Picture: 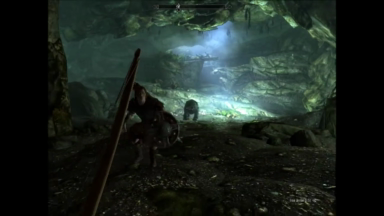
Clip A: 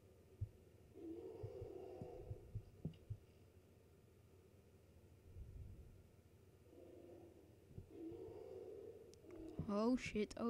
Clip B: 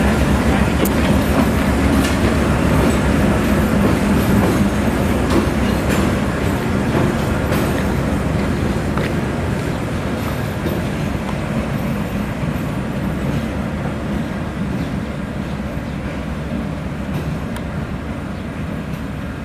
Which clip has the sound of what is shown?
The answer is A